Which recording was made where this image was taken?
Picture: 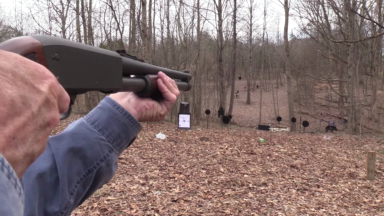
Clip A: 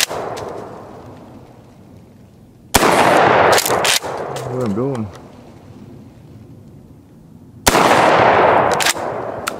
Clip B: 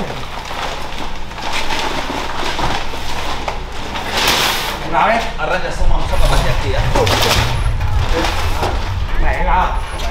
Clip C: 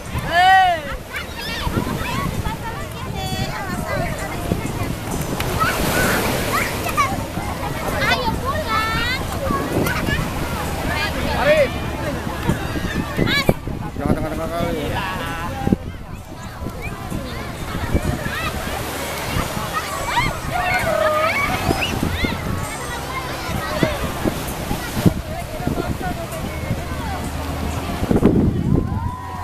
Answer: A